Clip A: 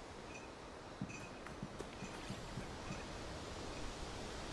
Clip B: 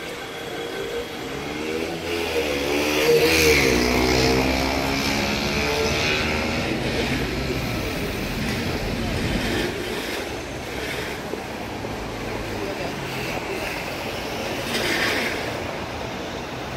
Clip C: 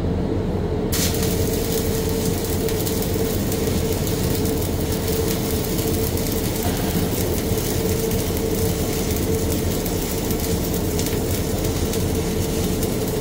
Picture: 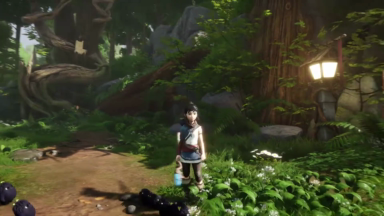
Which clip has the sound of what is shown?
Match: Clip A